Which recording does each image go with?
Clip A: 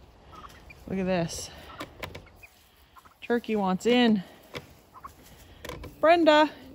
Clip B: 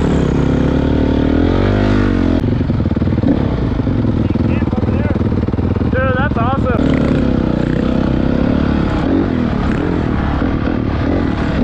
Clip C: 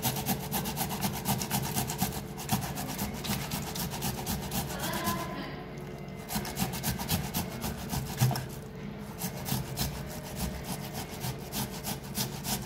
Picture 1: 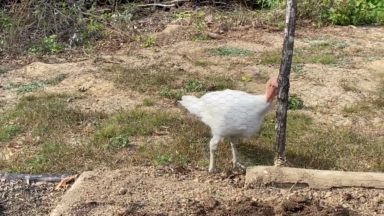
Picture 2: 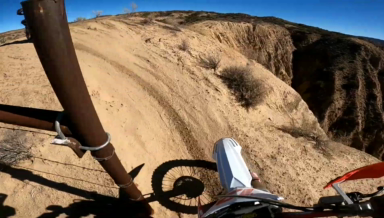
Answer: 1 A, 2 B